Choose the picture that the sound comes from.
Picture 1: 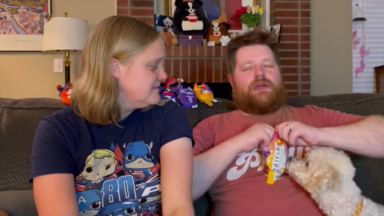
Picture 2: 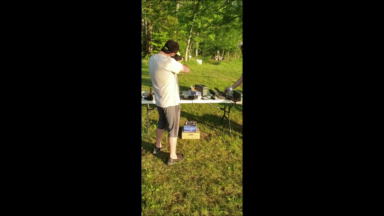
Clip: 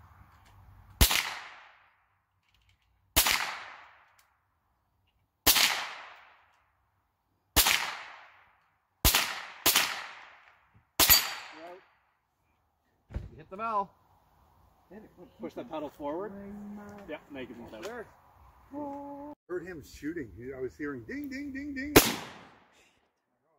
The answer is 2